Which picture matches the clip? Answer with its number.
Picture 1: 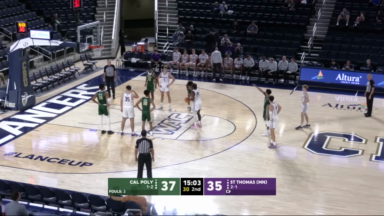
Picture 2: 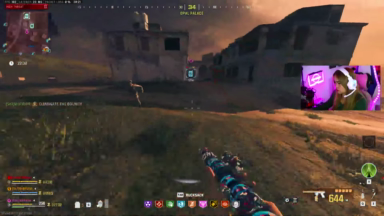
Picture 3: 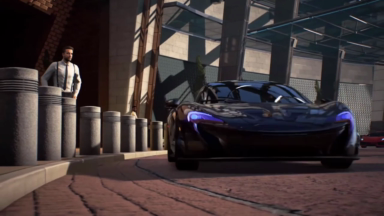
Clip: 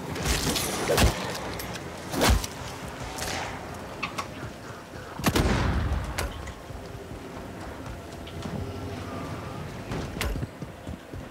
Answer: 2